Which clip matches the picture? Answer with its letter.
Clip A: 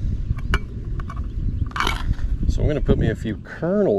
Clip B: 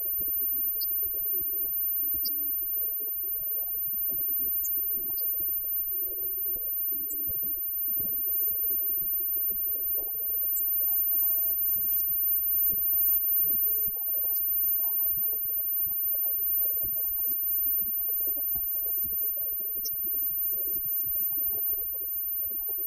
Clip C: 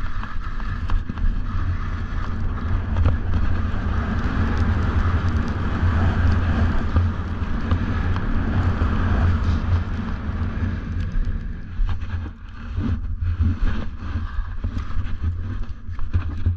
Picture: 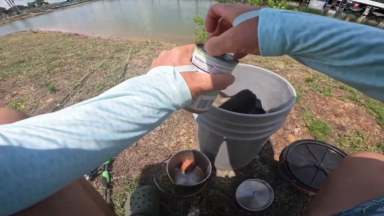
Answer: A